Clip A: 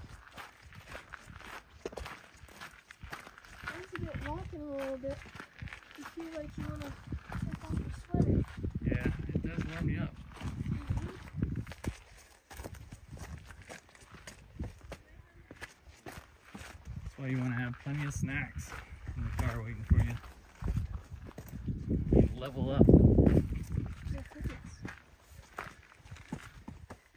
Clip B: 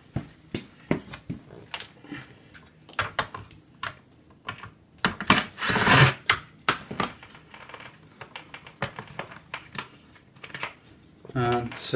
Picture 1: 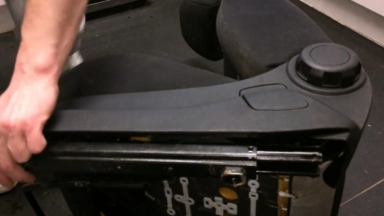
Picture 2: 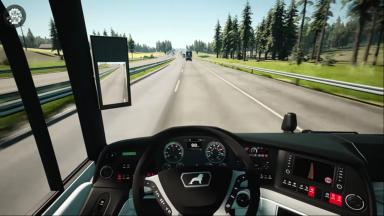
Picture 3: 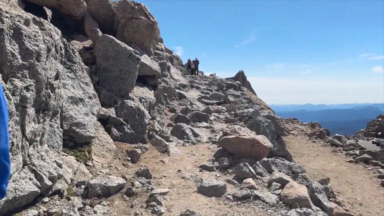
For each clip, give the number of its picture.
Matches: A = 3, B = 1